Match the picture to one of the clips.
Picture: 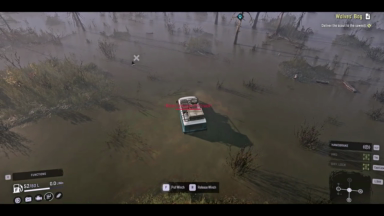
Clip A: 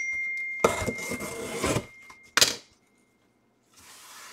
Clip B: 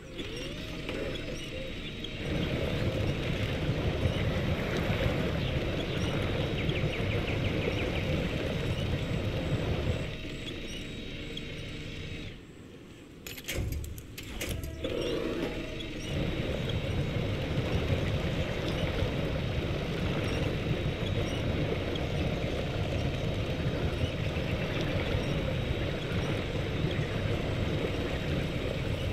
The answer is B